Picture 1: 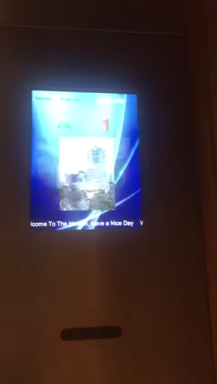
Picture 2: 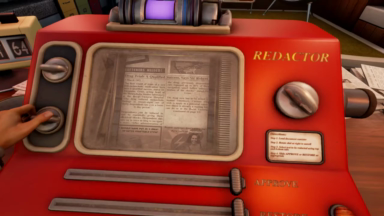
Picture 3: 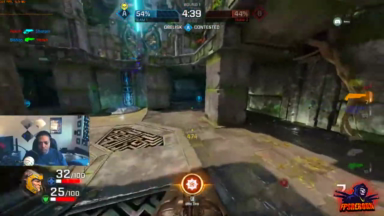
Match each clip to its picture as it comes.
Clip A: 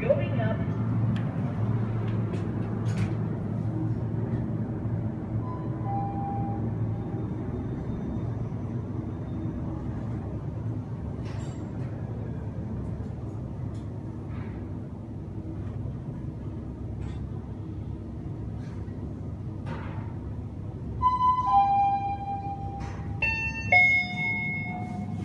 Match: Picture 1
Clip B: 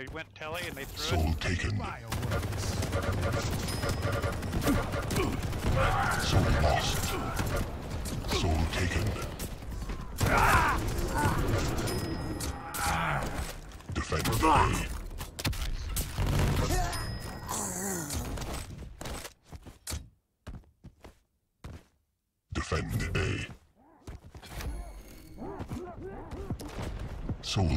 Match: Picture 3